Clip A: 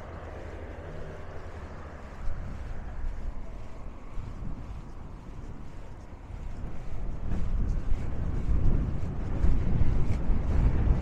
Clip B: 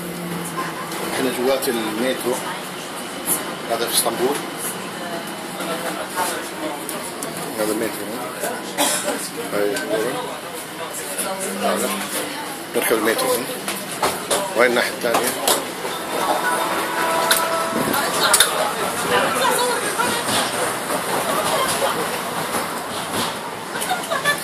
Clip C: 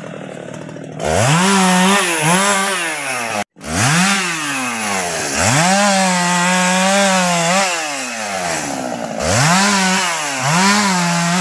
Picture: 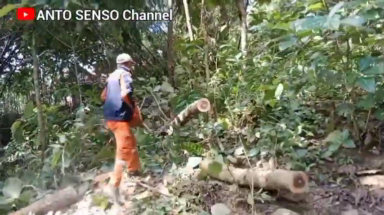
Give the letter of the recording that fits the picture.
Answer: C